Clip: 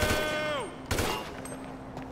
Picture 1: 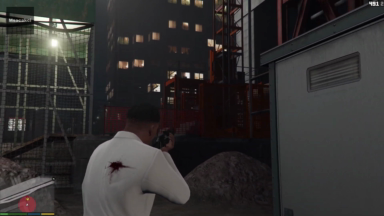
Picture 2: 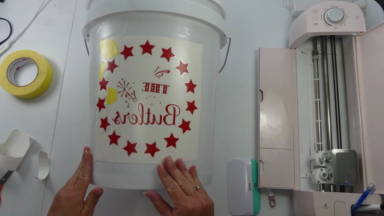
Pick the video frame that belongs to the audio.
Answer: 1